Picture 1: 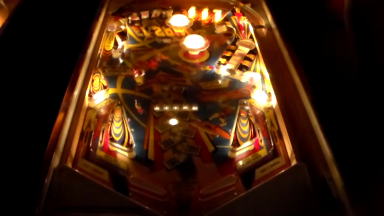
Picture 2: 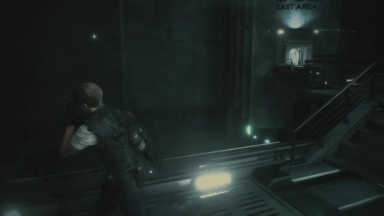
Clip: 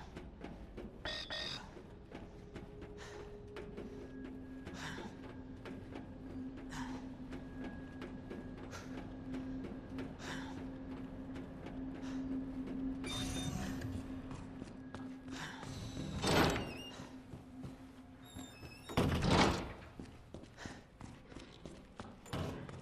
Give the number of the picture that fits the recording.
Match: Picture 2